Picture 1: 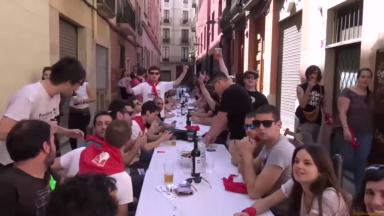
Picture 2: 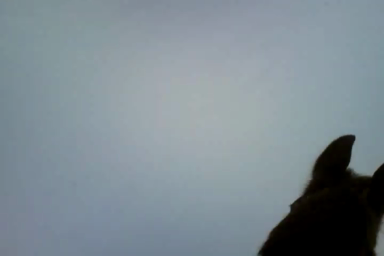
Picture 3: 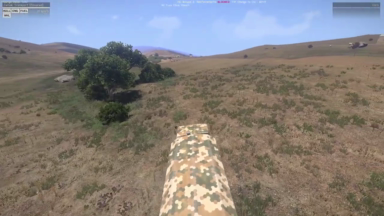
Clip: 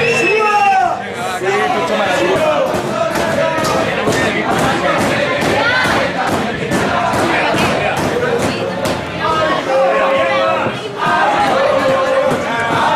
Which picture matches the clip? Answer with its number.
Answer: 1